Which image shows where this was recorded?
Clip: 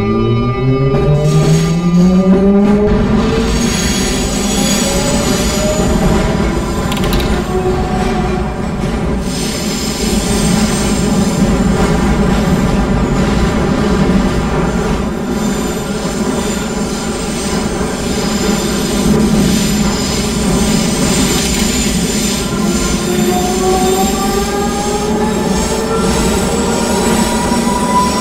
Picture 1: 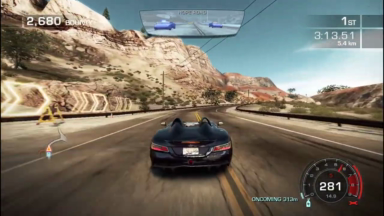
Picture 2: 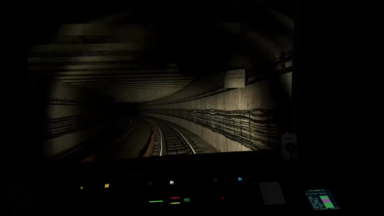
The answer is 2